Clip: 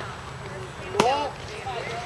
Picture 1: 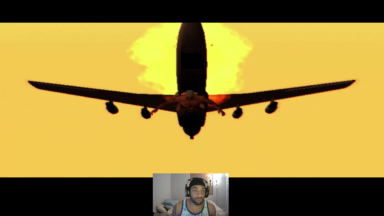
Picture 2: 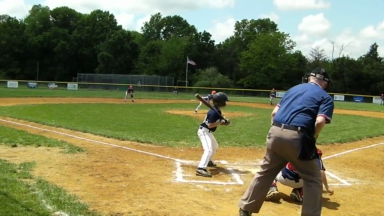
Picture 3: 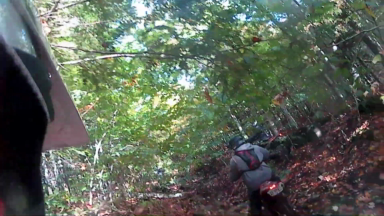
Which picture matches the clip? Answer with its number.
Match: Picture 2